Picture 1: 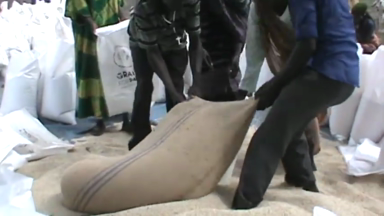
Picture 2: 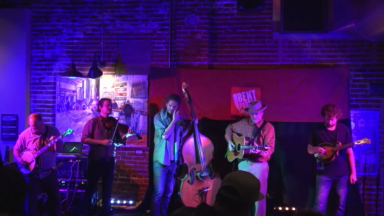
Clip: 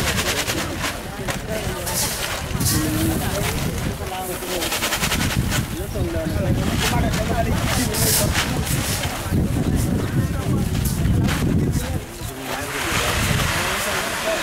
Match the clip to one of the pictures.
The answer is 1